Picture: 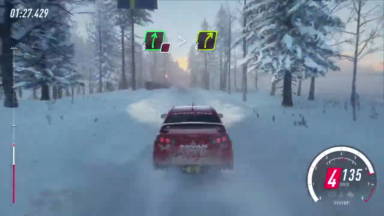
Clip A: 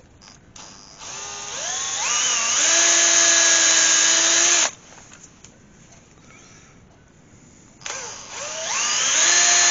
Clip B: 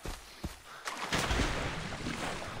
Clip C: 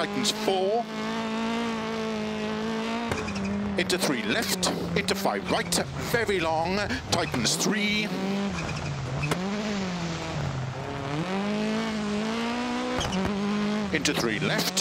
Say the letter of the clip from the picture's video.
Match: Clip C